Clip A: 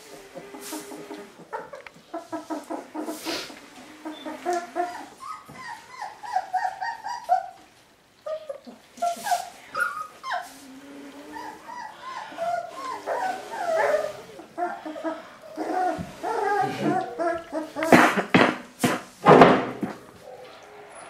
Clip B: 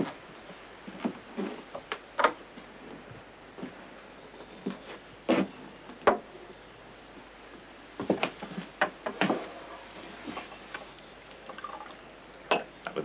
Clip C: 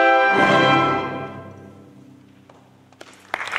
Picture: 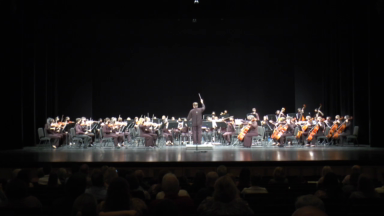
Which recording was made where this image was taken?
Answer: C